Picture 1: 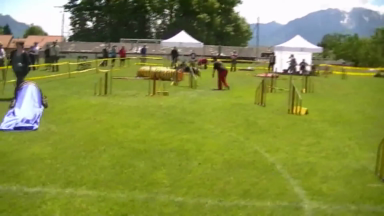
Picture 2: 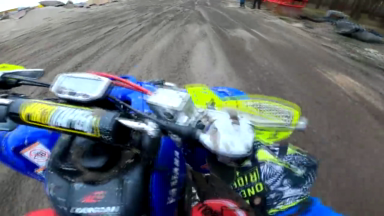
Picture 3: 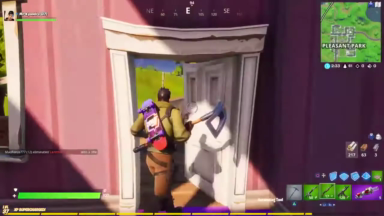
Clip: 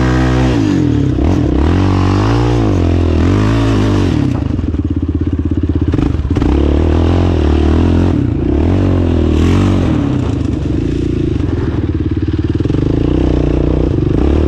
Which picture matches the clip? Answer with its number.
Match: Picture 2